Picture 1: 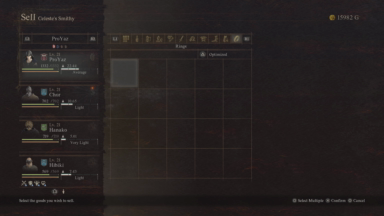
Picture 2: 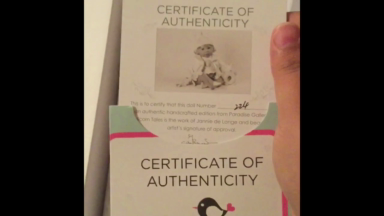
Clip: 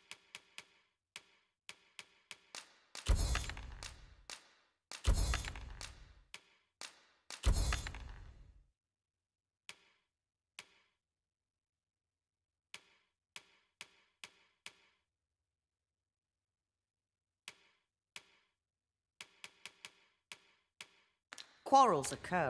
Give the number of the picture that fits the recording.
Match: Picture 1